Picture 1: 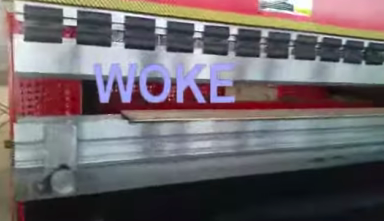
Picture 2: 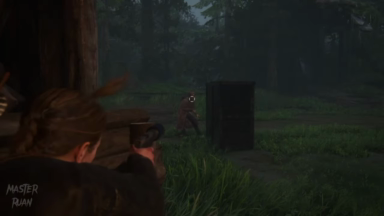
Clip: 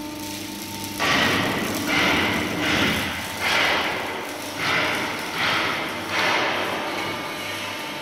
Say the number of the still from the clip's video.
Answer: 1